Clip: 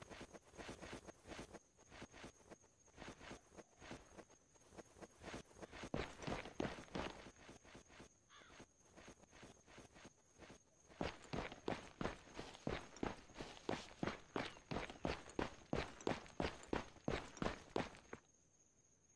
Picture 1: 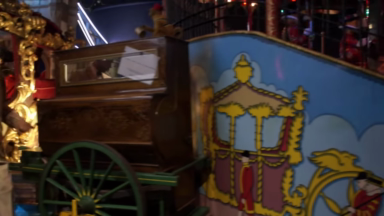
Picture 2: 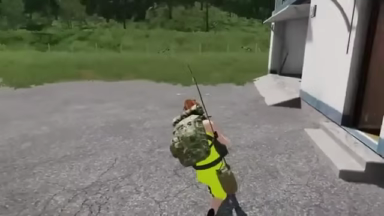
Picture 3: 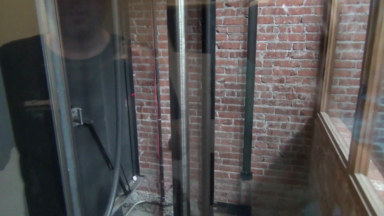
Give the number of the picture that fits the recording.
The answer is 2